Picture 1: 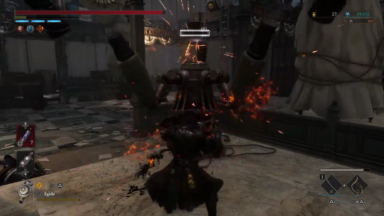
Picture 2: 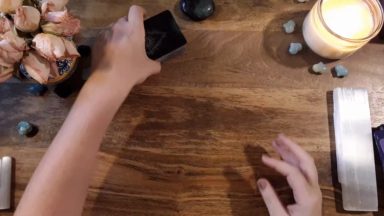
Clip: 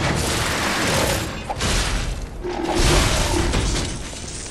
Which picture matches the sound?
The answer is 1